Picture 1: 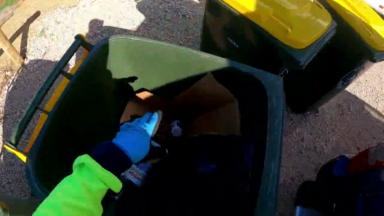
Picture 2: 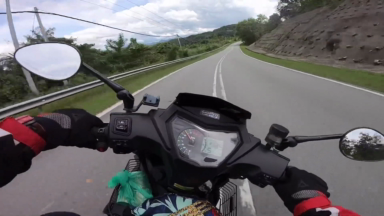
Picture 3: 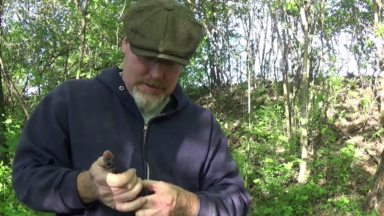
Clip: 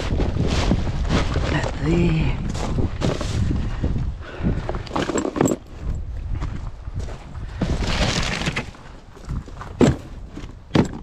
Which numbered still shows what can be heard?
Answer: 1